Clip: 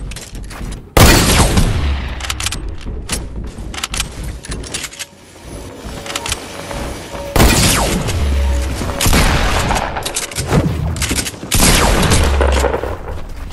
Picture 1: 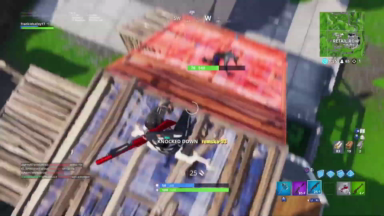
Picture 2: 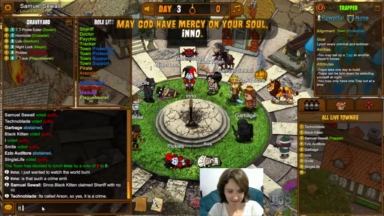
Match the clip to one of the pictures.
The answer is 1